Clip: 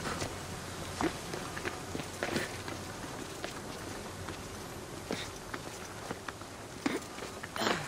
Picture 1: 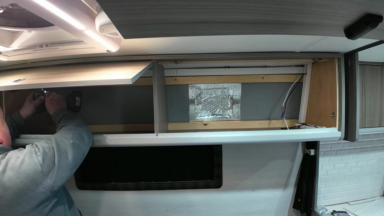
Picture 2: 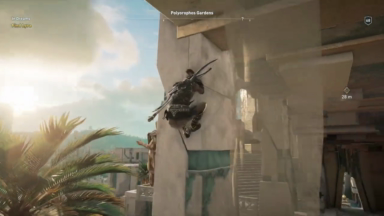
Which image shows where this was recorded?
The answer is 2